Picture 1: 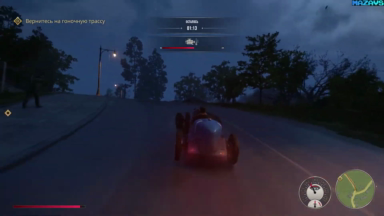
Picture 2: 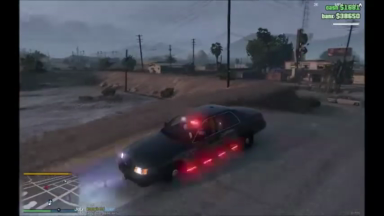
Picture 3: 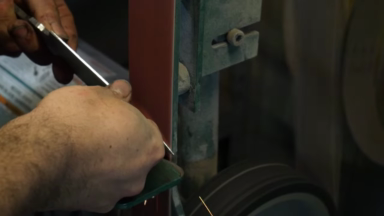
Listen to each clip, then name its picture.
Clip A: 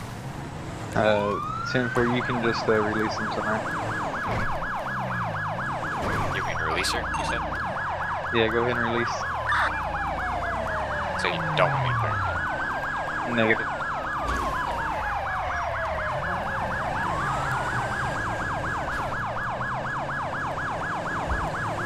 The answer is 2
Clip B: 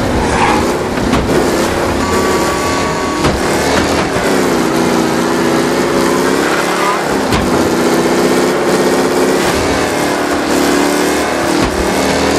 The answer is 1